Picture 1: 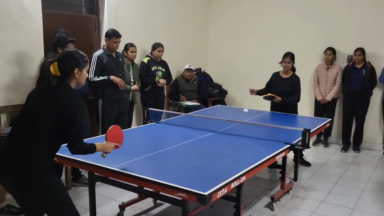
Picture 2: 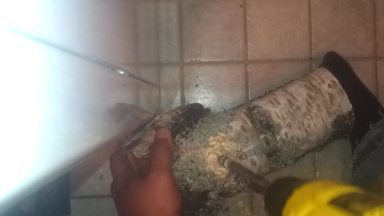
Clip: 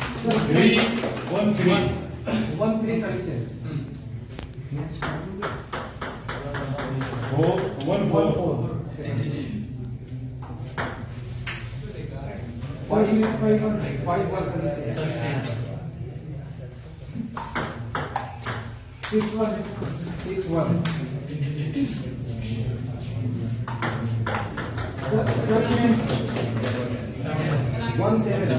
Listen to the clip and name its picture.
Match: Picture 1